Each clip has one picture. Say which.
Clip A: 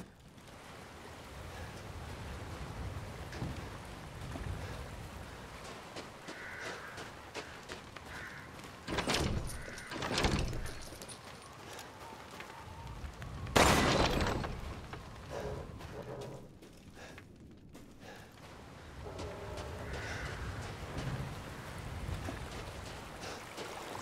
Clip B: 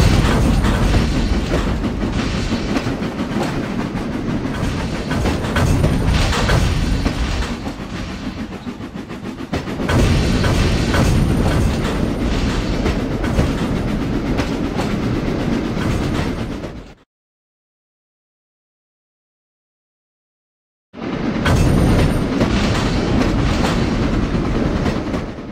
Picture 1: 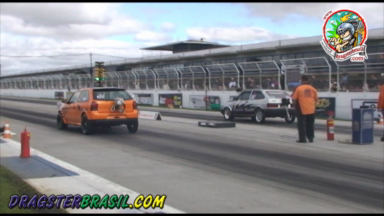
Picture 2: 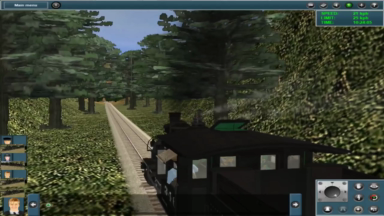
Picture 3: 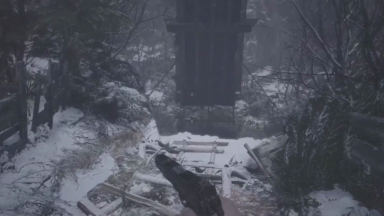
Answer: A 3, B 2